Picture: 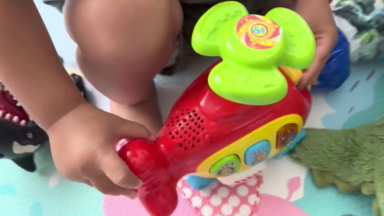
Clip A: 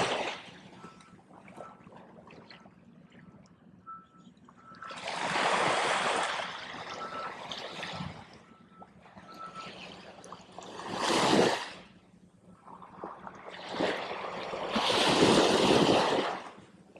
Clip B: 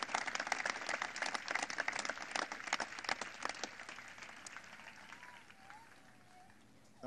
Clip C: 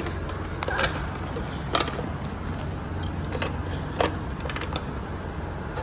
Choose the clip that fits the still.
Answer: C